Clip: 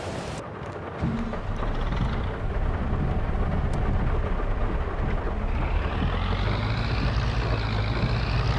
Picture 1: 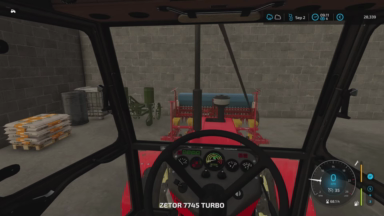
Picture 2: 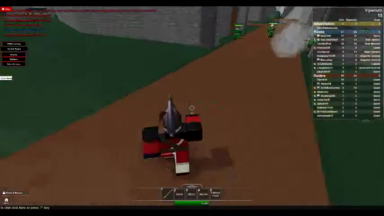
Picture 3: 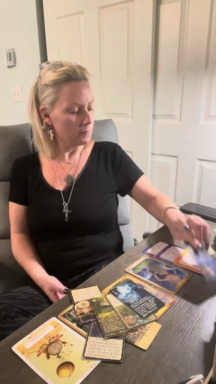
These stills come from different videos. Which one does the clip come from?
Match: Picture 1